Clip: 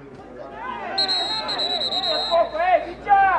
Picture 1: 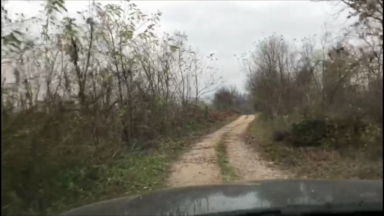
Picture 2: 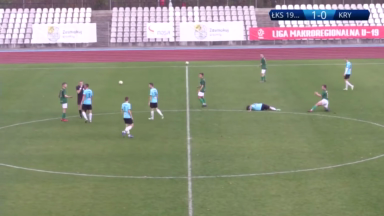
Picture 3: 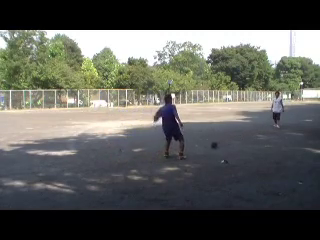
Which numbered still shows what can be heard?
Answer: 2